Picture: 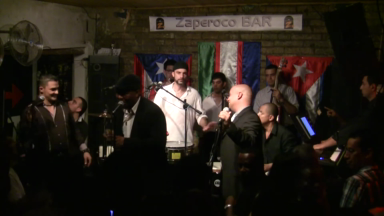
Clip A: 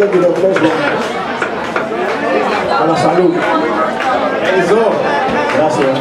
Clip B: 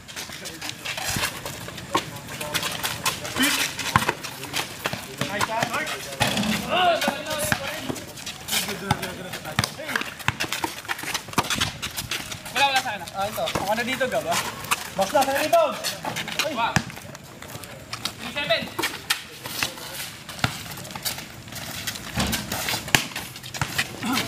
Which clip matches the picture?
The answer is A